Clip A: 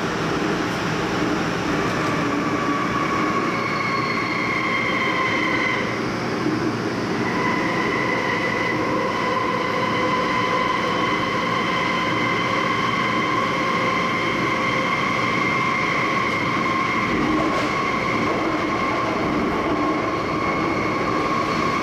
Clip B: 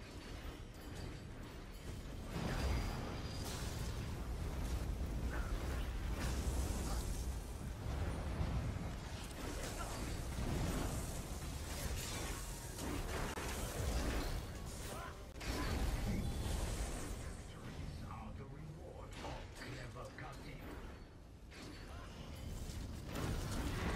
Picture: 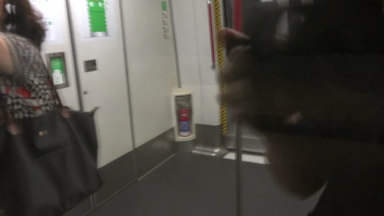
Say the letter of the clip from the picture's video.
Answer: A